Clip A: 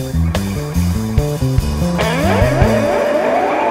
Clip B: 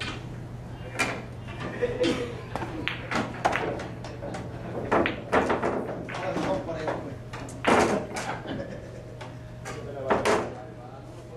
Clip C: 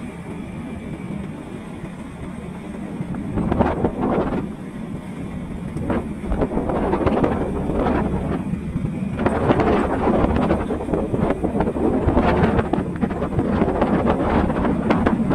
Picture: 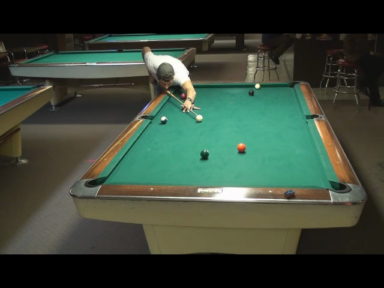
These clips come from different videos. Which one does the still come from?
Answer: B